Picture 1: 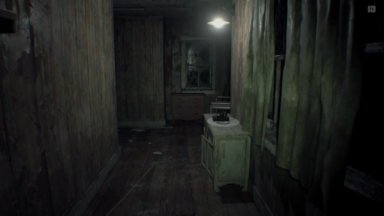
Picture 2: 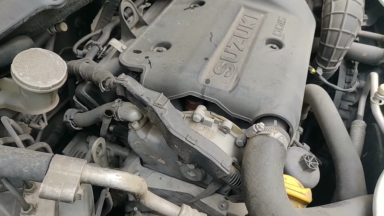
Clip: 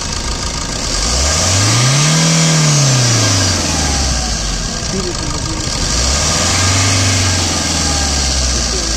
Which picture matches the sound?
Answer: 2